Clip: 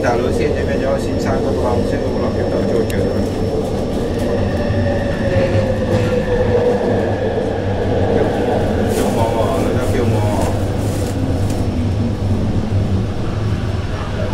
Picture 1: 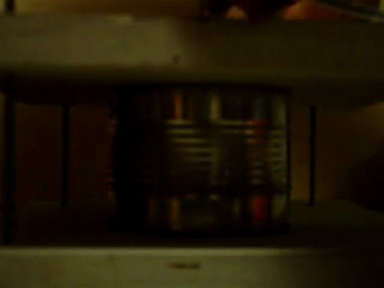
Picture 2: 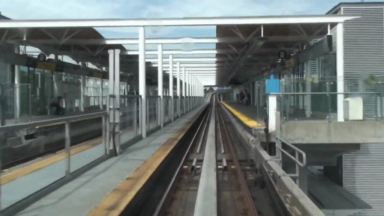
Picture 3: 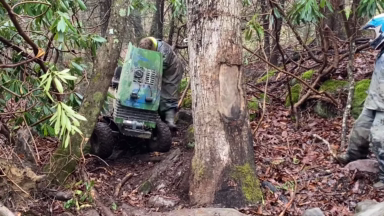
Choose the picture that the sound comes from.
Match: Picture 2